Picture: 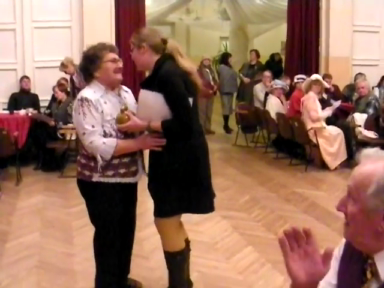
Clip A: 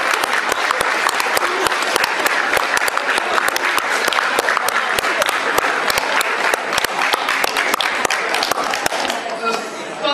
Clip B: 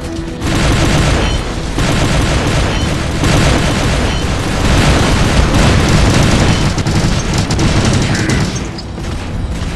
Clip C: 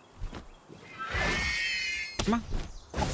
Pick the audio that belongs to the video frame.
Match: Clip A